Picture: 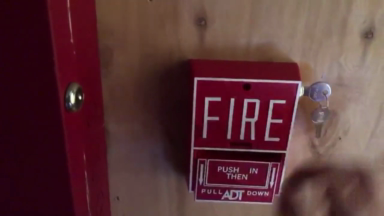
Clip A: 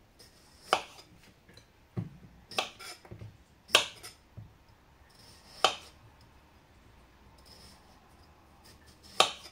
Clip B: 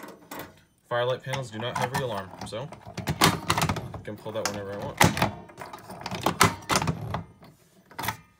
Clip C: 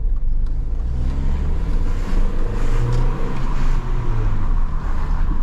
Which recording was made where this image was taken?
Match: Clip B